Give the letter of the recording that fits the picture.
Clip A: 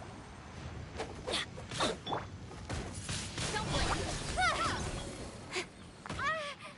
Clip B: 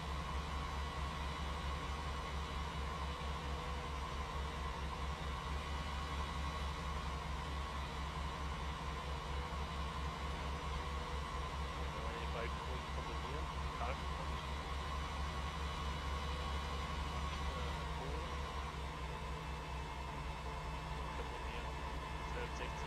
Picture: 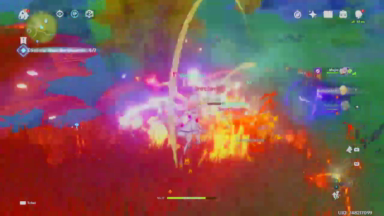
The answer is A